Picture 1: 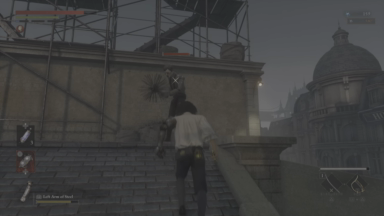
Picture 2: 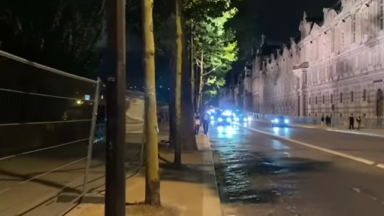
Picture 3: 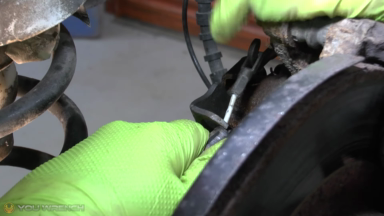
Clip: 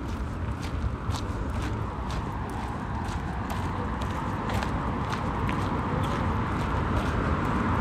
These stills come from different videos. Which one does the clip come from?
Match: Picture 2